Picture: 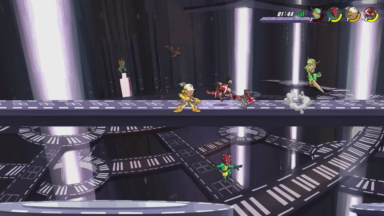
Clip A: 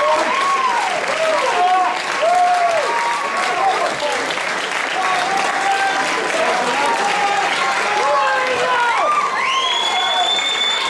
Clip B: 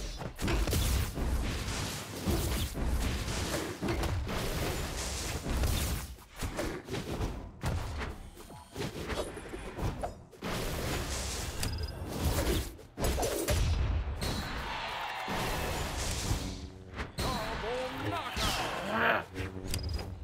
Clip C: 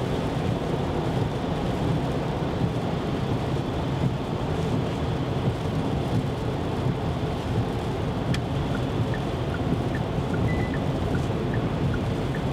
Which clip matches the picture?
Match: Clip B